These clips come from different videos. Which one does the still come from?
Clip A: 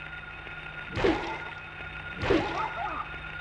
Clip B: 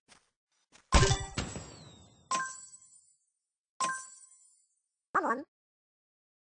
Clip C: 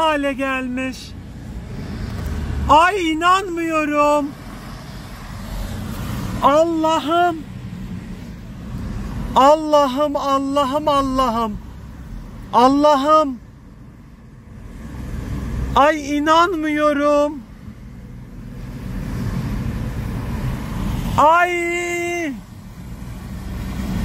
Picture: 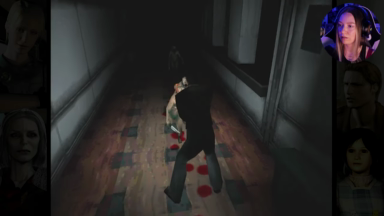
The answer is A